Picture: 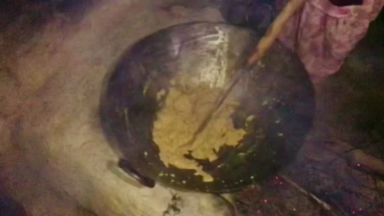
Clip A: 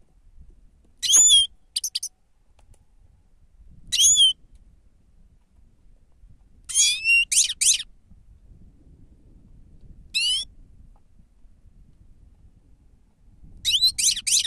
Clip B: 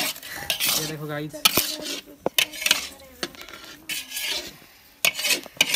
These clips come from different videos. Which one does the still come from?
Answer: B